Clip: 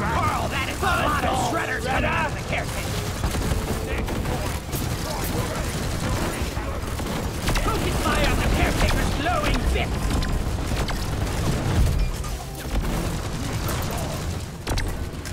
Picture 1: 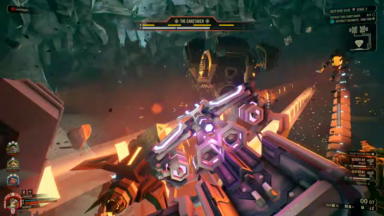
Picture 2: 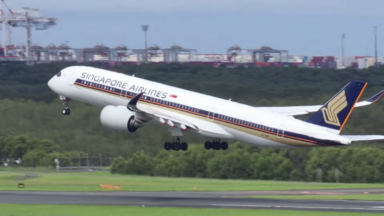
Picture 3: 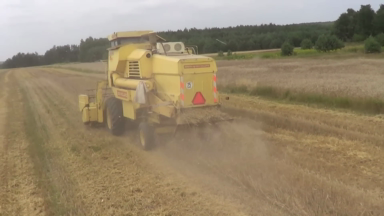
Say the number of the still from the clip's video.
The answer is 1